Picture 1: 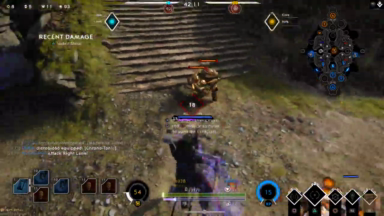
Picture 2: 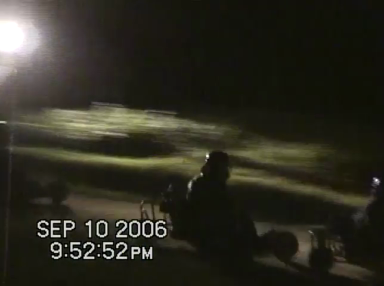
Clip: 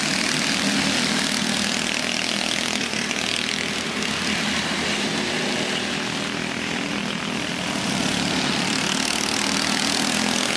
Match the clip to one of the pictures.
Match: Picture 2